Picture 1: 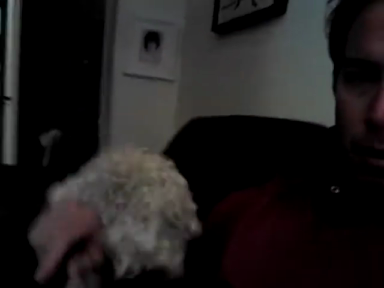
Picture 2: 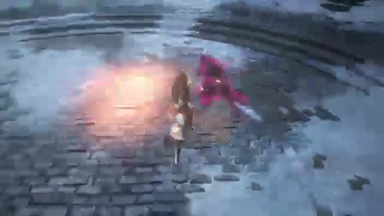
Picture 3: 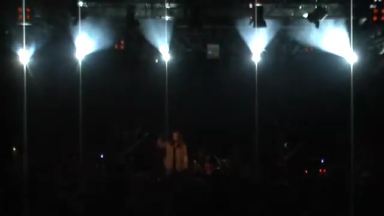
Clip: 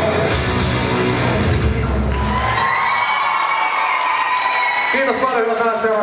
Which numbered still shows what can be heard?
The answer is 3